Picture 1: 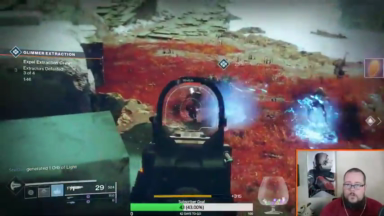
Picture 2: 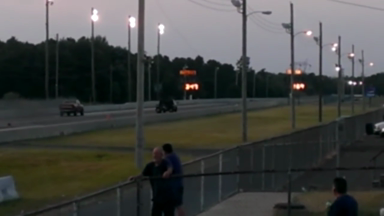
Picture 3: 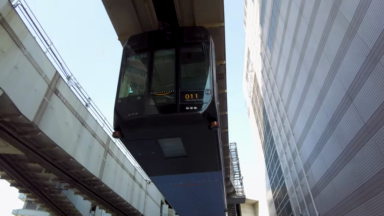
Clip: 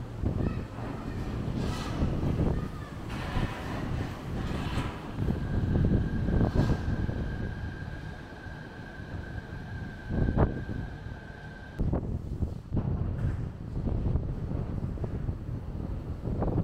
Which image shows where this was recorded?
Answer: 3